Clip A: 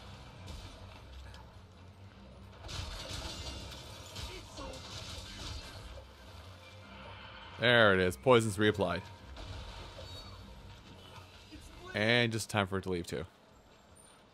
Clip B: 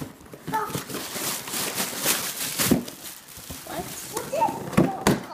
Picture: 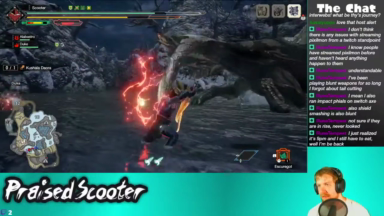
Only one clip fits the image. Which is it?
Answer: A